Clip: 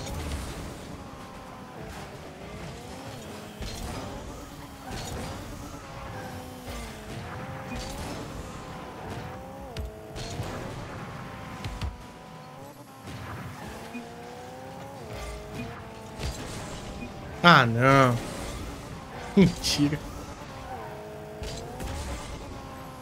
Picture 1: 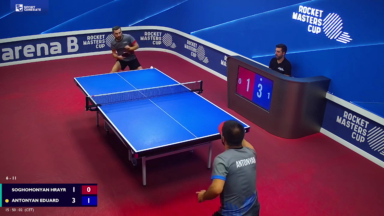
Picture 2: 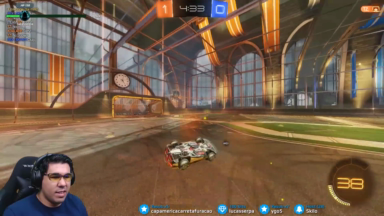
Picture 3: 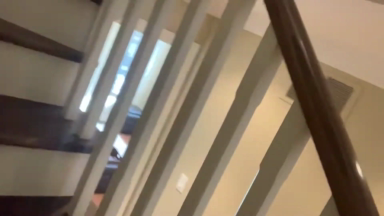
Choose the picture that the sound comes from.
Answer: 2